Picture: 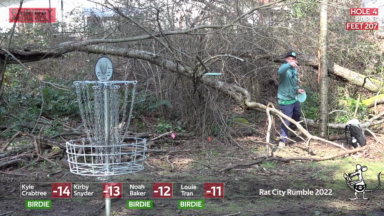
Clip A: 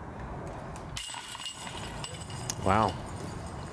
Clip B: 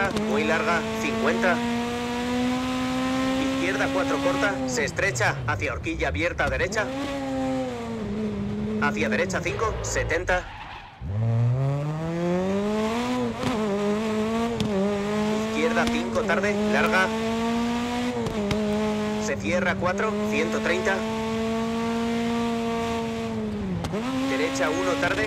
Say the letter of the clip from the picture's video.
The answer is A